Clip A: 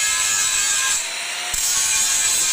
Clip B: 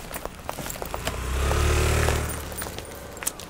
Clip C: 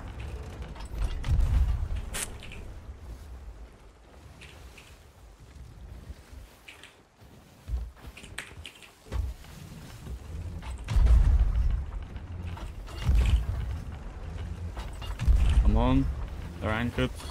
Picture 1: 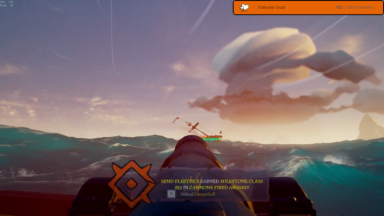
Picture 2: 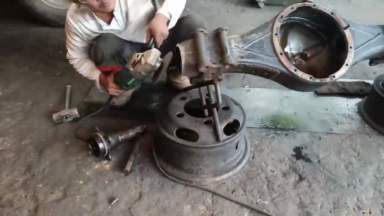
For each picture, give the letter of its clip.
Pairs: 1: C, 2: A